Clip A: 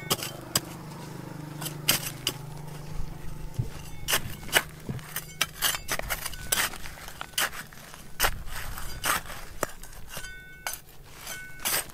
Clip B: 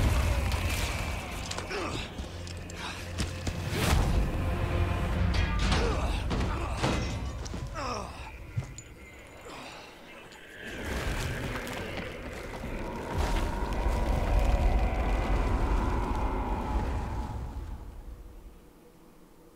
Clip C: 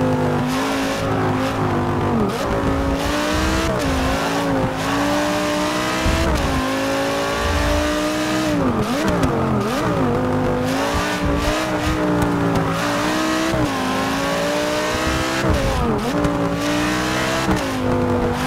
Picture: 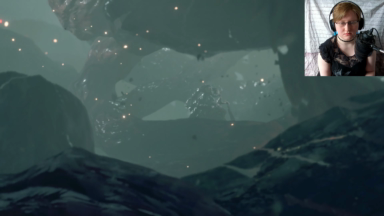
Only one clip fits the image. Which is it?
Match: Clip B